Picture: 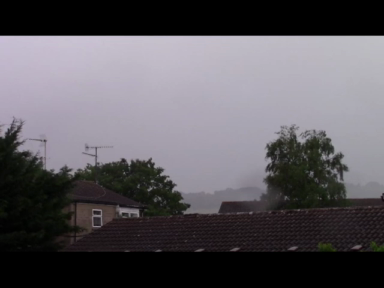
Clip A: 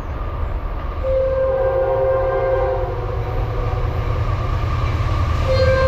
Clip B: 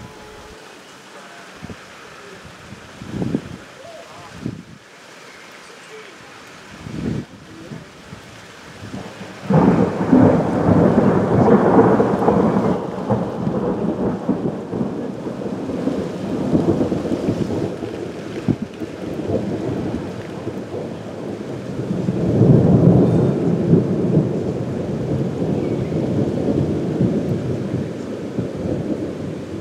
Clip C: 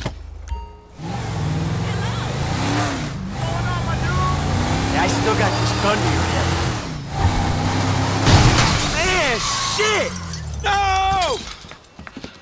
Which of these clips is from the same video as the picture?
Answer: B